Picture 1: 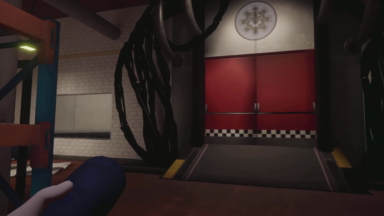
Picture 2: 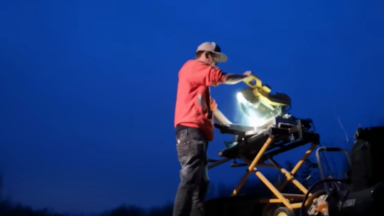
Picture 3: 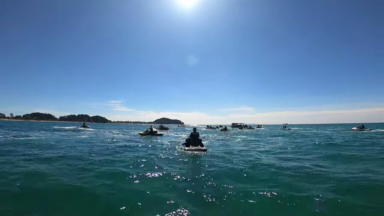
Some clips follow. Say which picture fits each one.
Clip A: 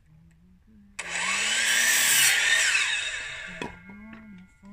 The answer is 2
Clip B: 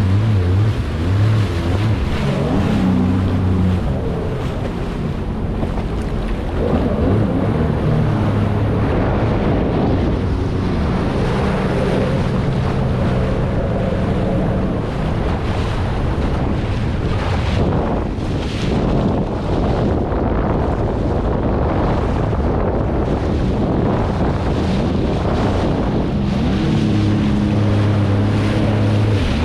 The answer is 3